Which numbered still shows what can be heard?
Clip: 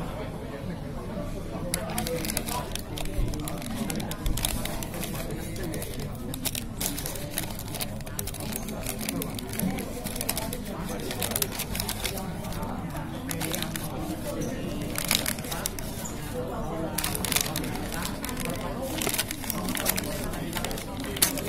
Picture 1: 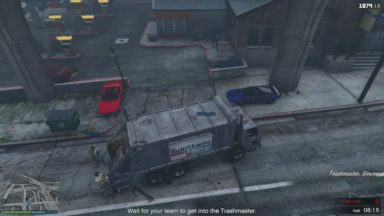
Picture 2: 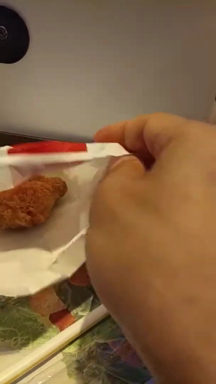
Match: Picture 2